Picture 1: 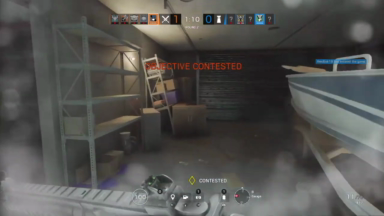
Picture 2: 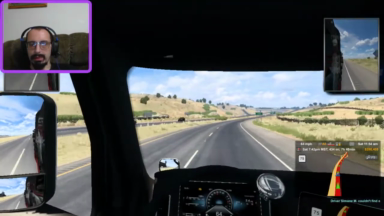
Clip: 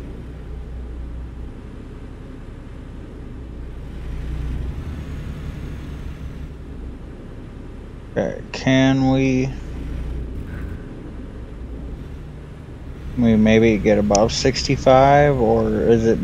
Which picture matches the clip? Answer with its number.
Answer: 2